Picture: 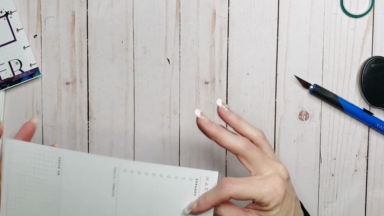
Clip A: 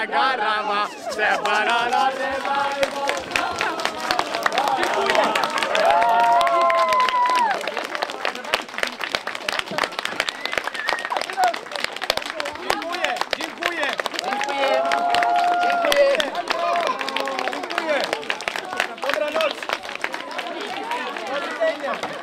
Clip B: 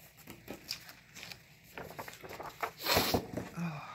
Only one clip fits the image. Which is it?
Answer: B